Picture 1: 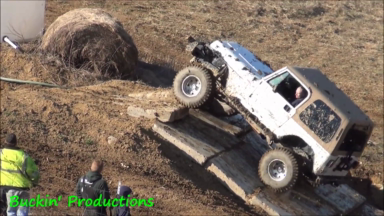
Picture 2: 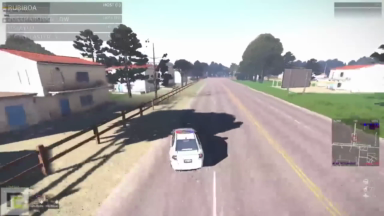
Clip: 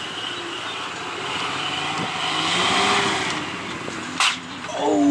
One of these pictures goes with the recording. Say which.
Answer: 1